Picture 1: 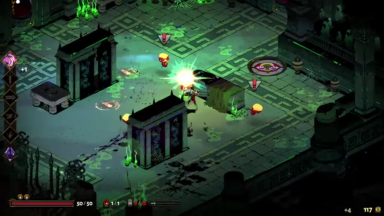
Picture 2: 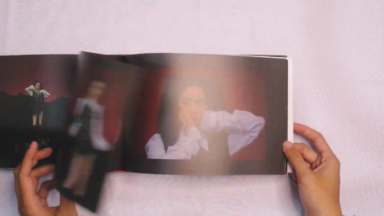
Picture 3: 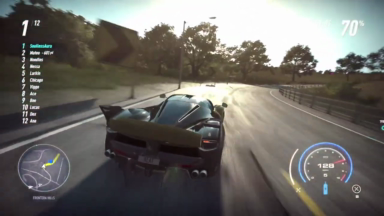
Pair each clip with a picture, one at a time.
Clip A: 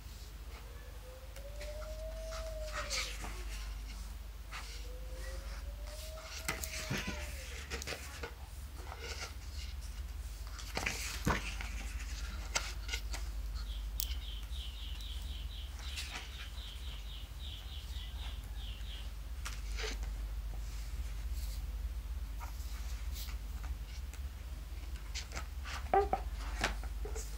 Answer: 2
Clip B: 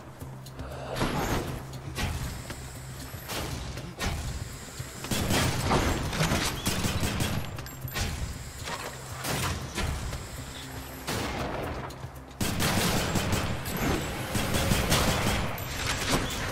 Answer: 1